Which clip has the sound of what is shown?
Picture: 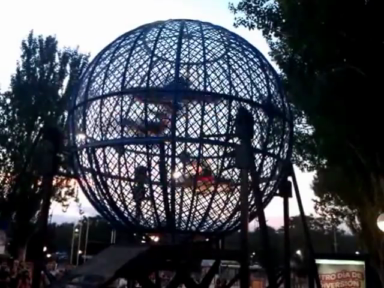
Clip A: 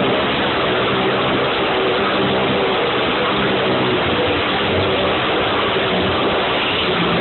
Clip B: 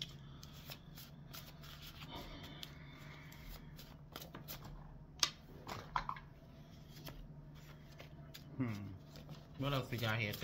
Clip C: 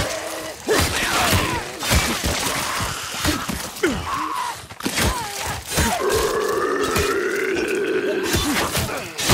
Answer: A